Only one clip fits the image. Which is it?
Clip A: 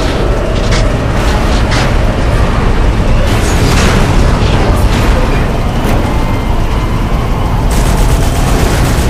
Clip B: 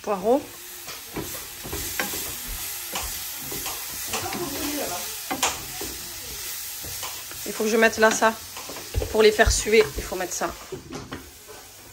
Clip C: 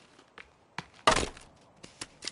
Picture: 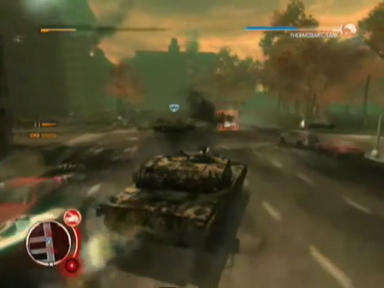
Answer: A